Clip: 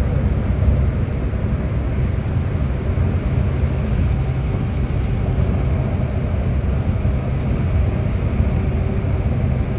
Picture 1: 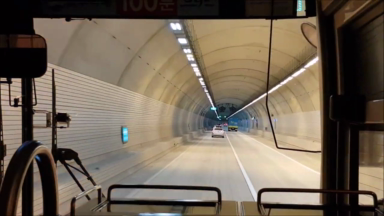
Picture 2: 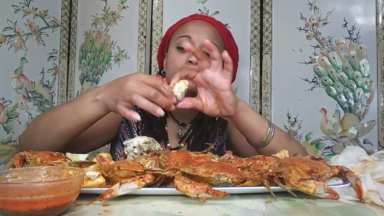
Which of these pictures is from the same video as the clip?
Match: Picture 1